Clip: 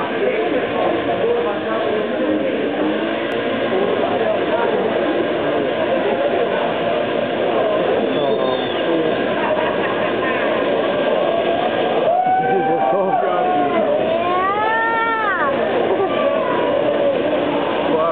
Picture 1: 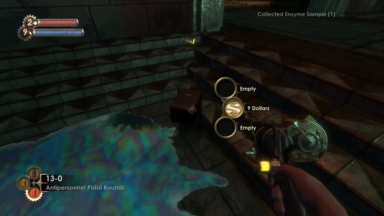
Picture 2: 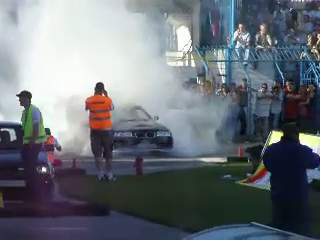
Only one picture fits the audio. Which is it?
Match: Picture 2